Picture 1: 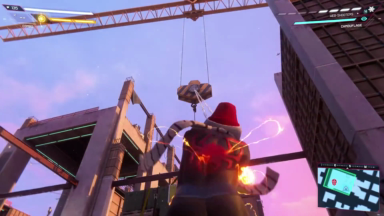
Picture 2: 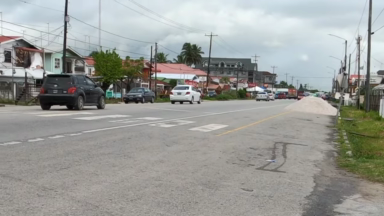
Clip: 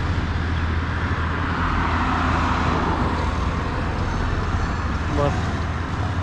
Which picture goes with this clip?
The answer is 2